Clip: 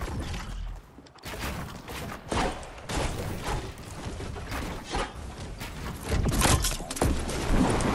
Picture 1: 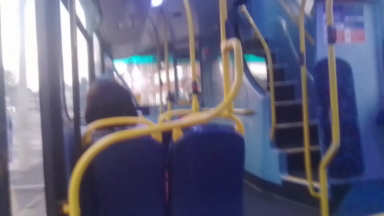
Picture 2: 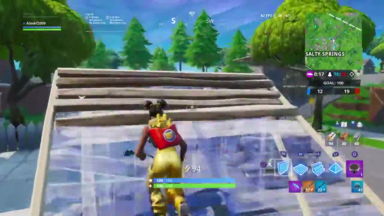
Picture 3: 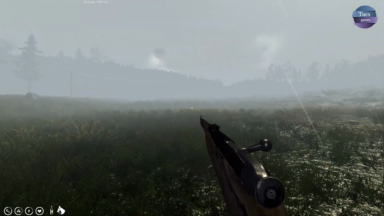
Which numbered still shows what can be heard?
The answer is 2